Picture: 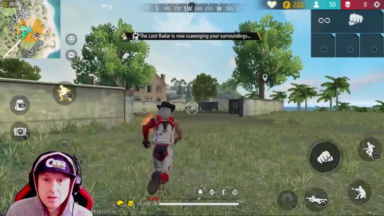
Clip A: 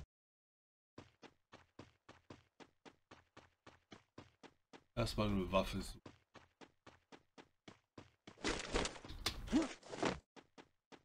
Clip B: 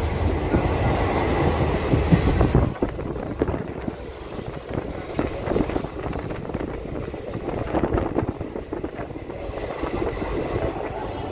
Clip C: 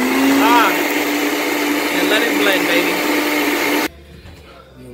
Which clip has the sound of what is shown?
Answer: A